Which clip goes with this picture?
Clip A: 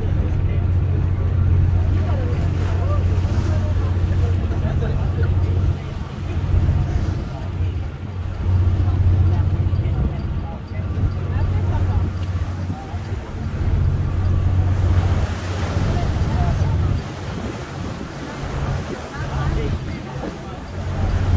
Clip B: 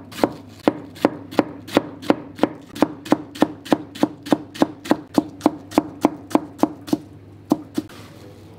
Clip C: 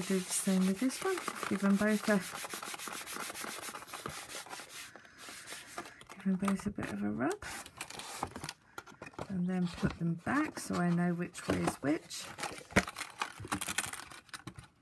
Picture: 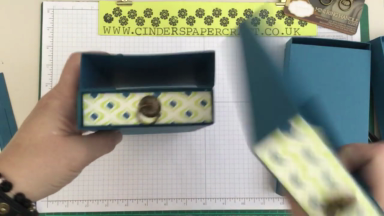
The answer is C